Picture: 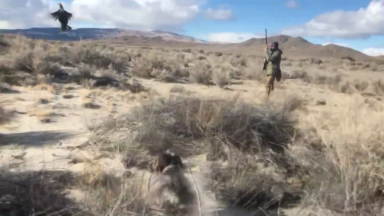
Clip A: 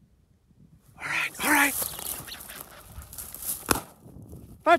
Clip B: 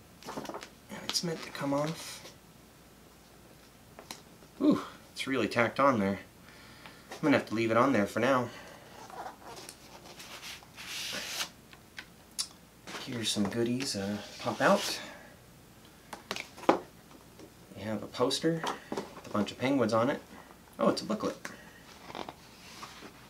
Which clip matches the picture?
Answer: A